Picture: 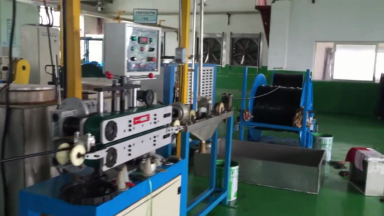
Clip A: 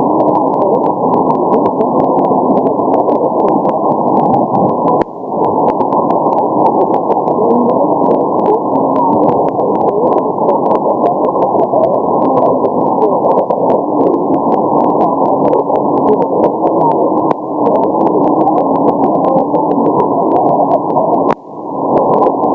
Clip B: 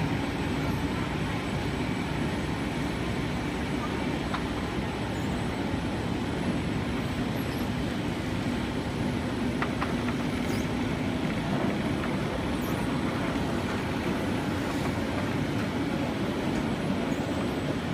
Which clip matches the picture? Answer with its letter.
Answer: B